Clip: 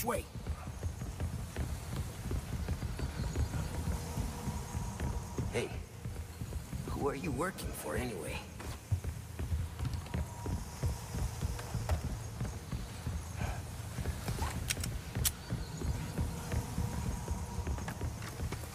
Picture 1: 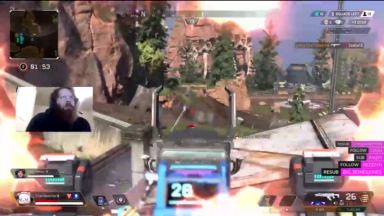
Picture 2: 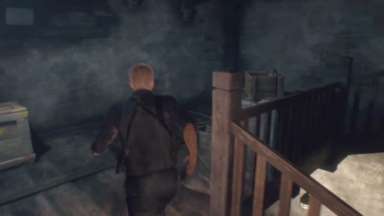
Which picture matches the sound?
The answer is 2